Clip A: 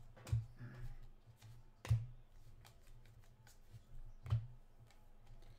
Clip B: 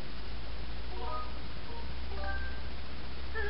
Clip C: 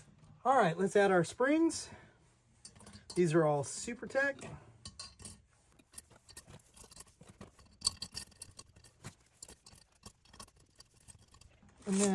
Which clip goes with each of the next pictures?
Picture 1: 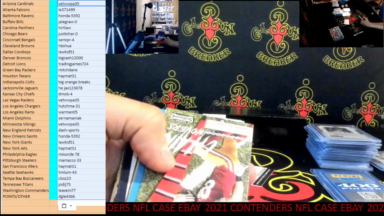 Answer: A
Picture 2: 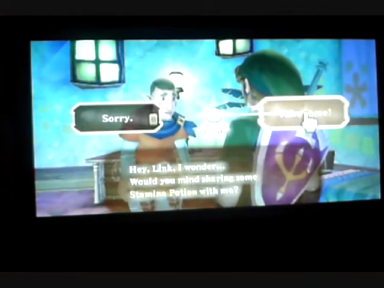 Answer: B